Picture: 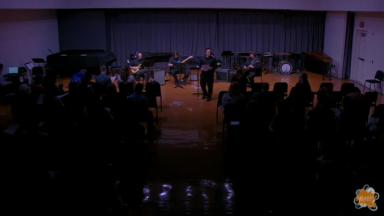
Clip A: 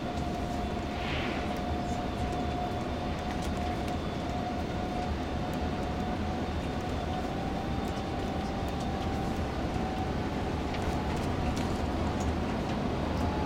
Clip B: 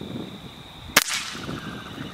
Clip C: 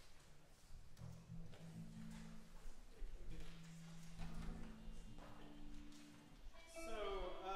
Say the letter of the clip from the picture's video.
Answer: C